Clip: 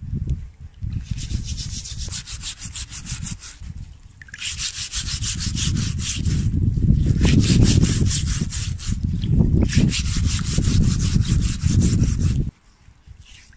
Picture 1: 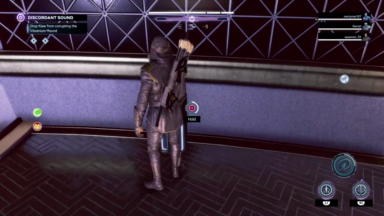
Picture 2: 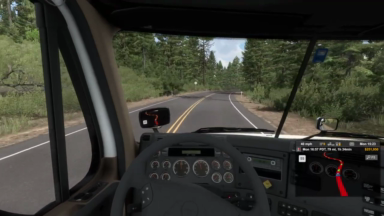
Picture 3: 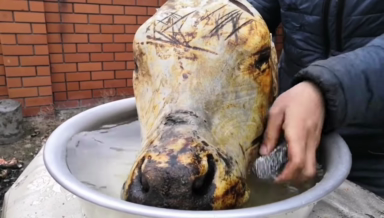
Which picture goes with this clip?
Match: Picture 3